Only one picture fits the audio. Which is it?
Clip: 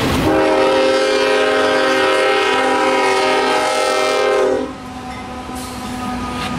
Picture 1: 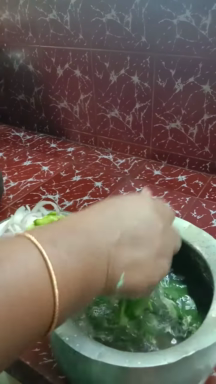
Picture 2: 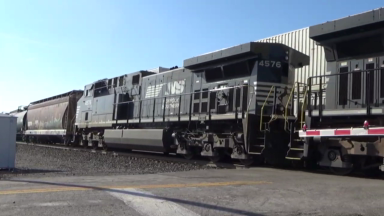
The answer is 2